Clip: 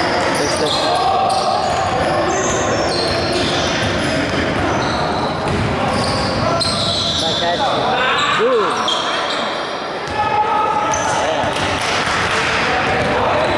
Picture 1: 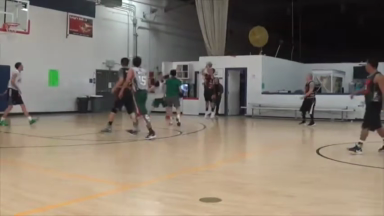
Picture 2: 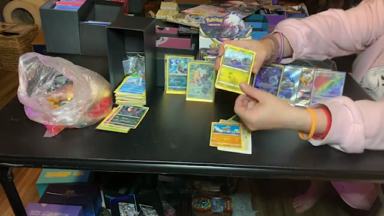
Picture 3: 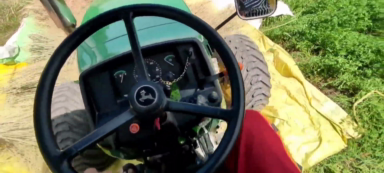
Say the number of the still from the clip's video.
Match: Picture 1